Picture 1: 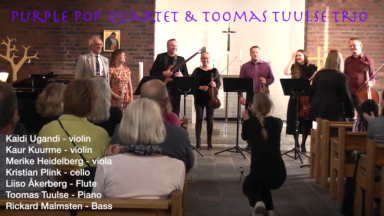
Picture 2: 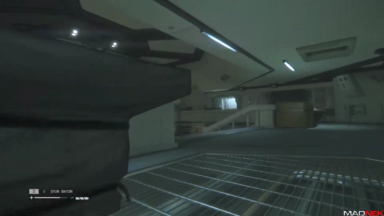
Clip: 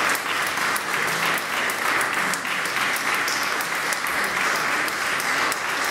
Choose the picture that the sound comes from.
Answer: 1